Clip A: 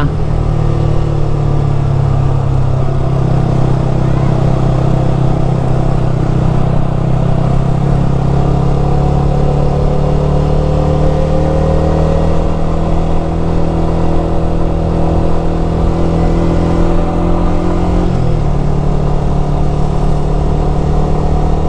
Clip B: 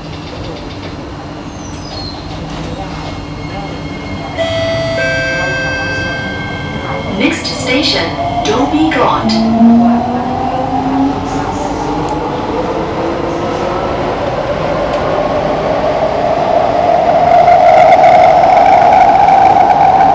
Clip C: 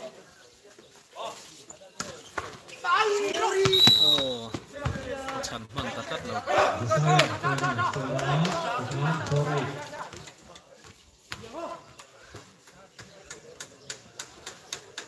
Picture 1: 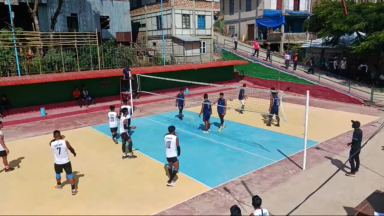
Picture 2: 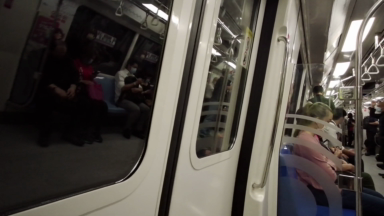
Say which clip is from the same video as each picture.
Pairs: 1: C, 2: B